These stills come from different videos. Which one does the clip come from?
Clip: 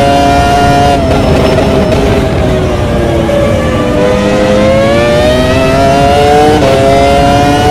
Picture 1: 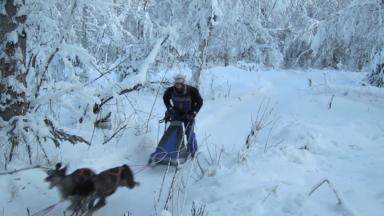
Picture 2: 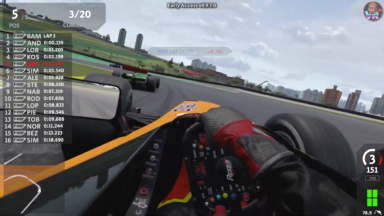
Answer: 2